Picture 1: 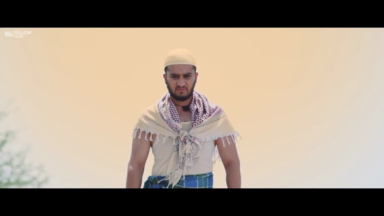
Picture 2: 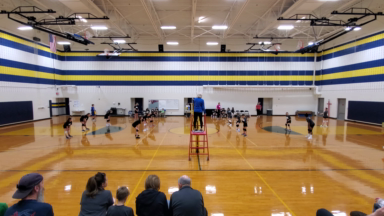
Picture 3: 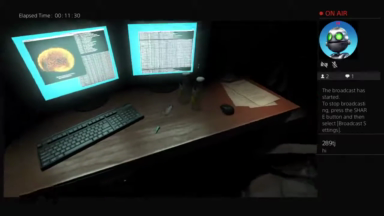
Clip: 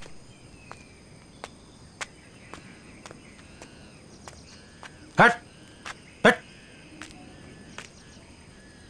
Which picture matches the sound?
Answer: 1